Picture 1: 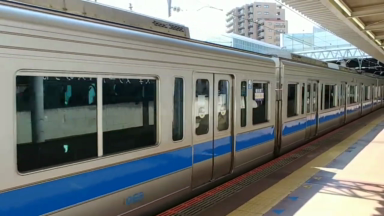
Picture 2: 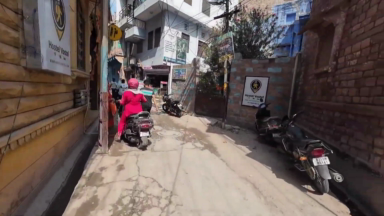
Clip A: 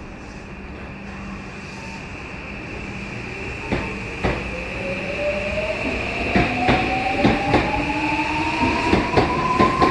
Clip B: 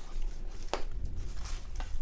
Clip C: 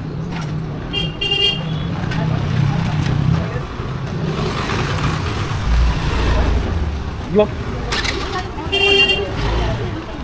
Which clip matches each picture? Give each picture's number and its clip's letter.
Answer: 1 A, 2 C